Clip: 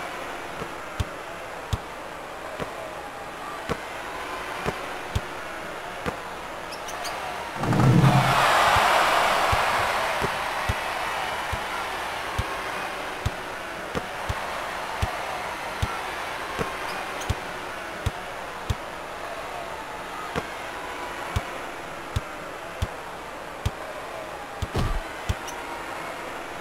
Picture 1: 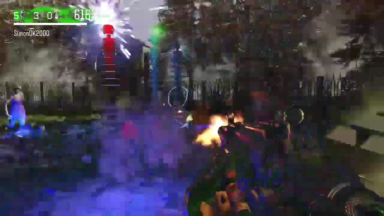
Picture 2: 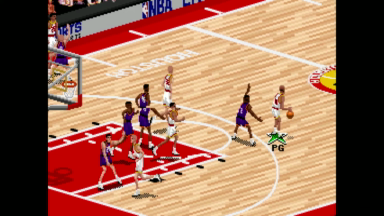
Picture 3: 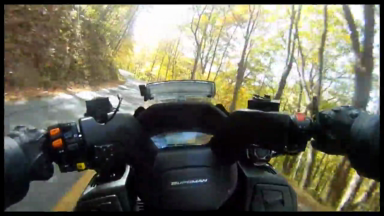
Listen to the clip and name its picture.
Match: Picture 2